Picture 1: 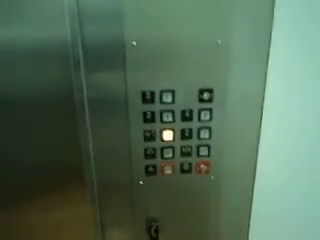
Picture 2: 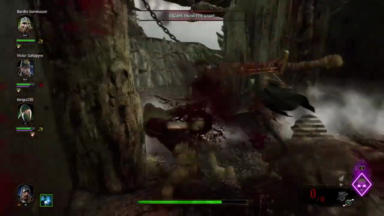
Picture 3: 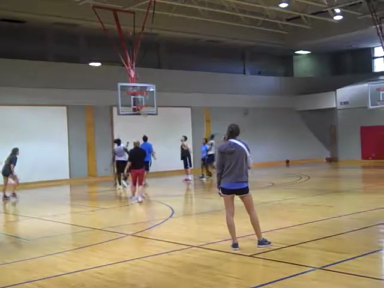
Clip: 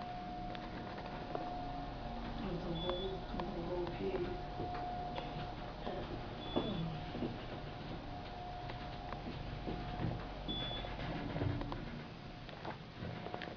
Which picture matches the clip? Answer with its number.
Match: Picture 1